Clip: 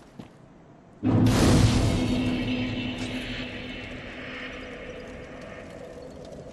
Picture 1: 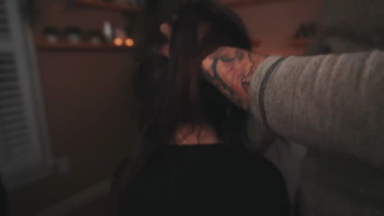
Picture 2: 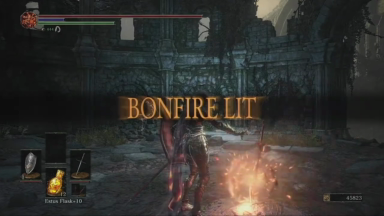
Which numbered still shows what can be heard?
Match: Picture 2